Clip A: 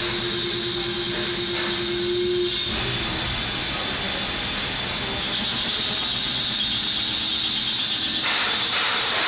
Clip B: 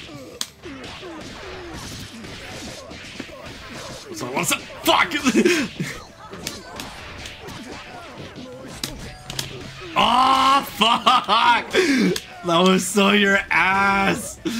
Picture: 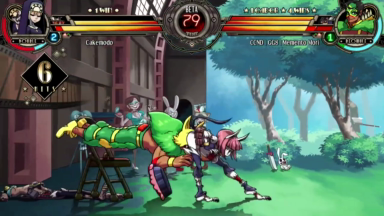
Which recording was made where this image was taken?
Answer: B